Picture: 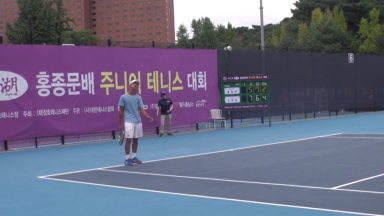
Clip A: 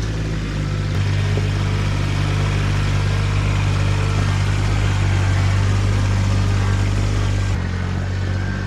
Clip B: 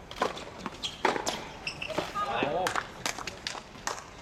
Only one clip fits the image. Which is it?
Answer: B